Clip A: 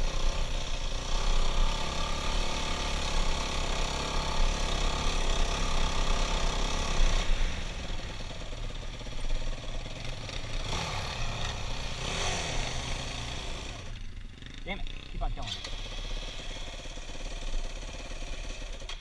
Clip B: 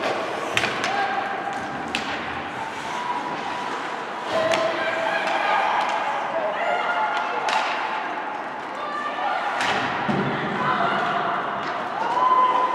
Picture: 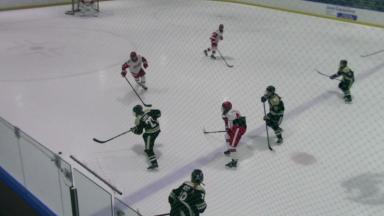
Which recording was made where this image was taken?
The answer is B